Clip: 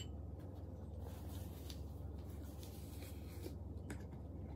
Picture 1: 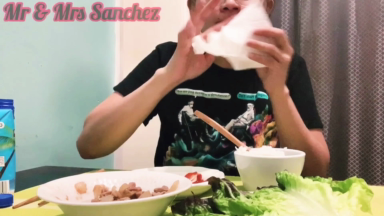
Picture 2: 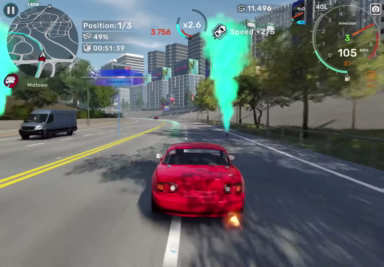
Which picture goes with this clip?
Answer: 1